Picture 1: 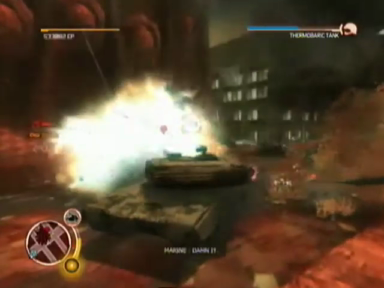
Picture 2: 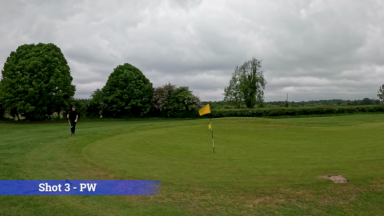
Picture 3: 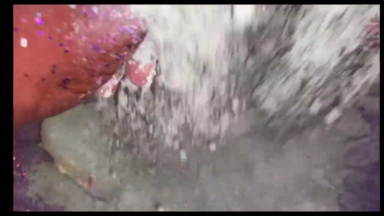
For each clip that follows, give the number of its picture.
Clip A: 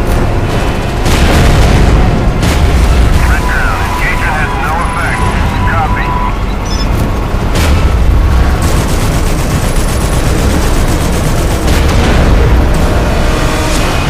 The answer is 1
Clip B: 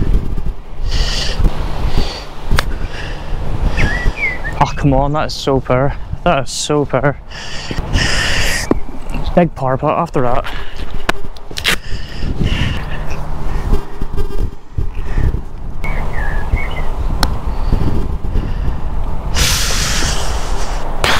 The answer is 2